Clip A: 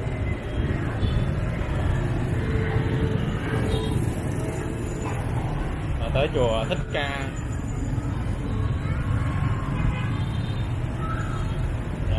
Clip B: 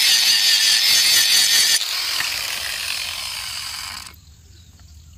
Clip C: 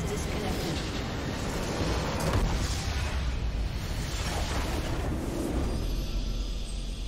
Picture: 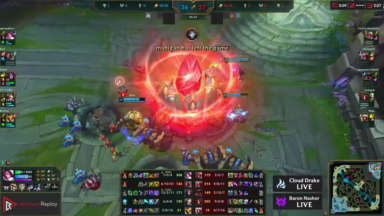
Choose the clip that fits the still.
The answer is C